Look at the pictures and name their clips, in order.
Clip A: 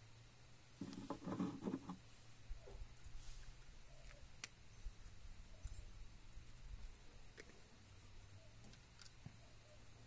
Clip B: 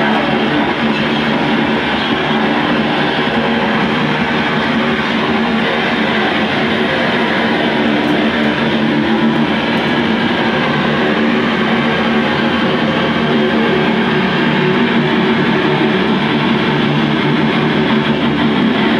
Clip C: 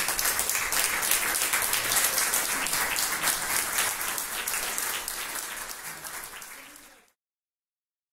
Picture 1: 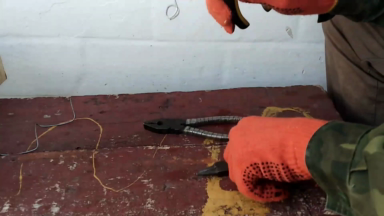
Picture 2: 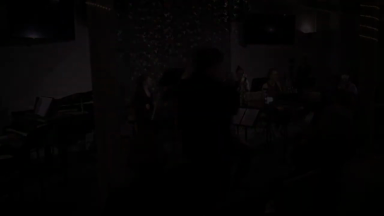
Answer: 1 A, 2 C